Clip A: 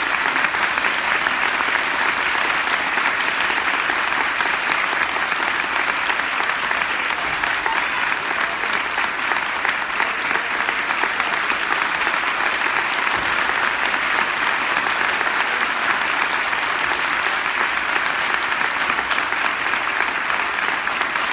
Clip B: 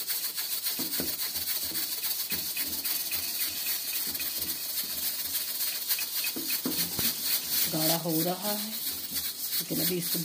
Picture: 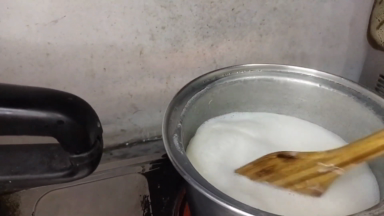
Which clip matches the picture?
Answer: B